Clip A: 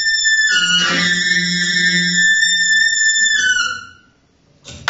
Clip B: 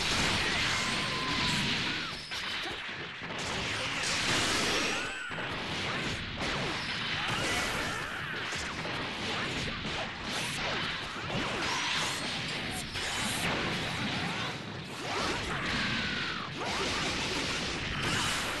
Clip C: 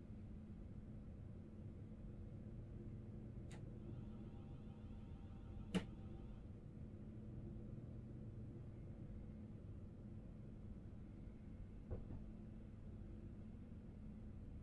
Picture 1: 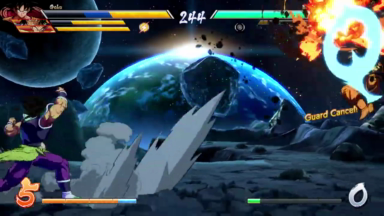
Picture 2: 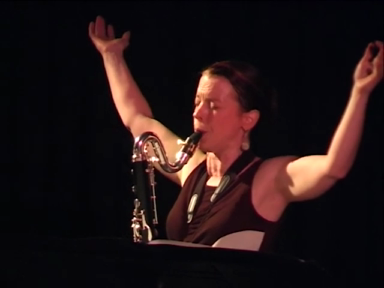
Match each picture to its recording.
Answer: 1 B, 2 A